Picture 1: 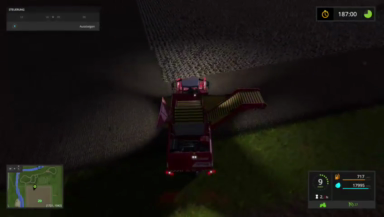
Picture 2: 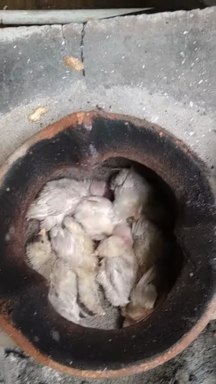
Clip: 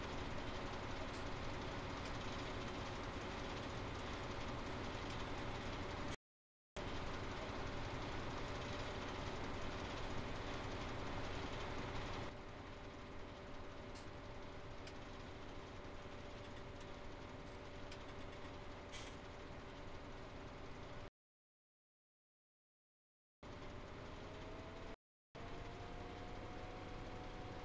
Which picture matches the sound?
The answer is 1